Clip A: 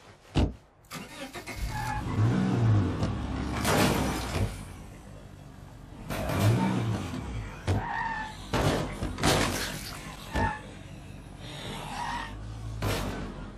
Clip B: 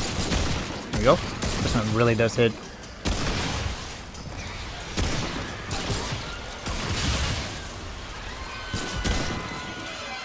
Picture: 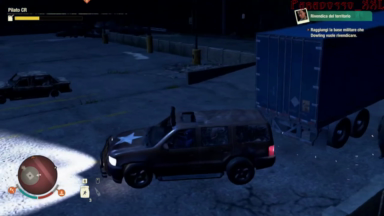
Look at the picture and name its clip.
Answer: A